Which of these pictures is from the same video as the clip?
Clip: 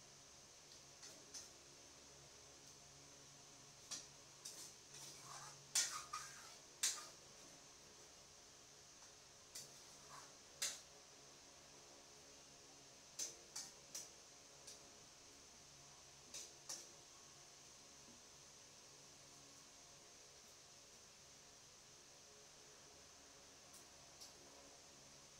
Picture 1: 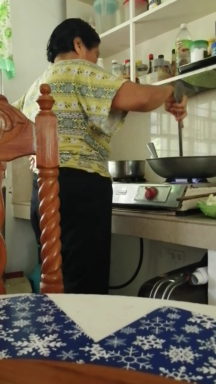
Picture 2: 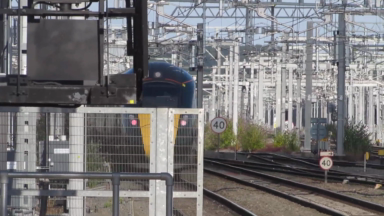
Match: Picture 1